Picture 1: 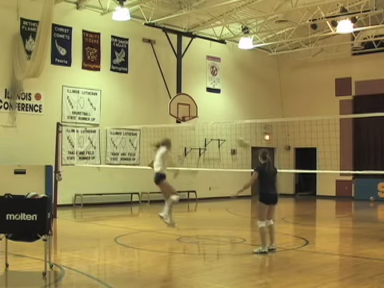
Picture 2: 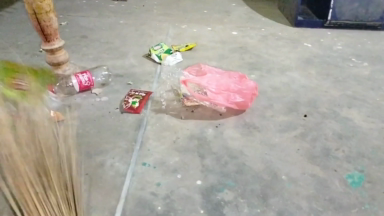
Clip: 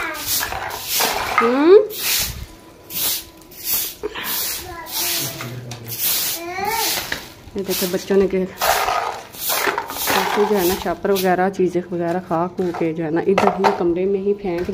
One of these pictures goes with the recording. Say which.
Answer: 2